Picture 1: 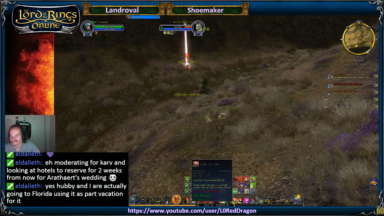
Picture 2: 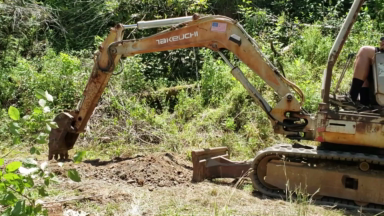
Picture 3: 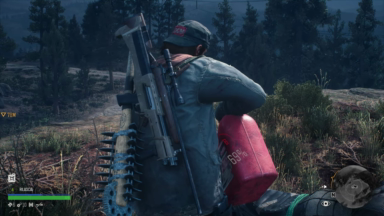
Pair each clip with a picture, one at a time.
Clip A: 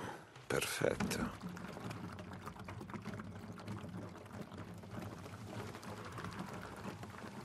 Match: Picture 3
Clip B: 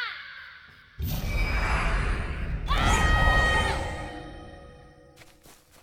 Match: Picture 1